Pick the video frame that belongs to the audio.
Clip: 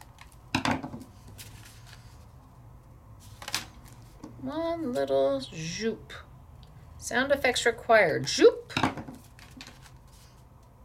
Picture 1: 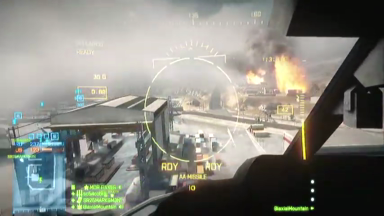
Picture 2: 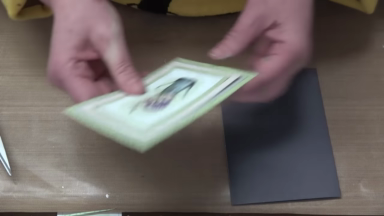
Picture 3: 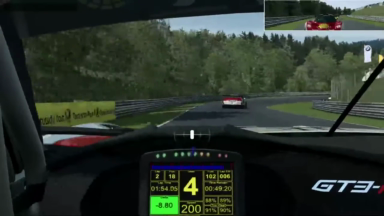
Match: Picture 2